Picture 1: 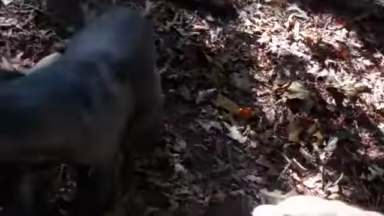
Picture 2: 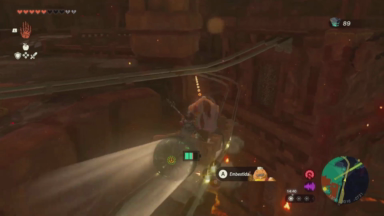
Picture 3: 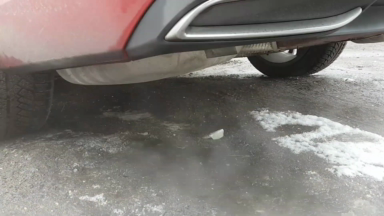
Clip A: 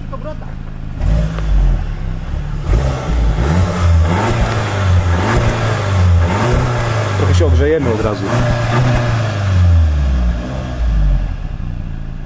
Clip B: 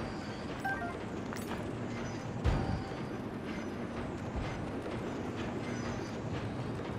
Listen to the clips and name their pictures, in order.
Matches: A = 3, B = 2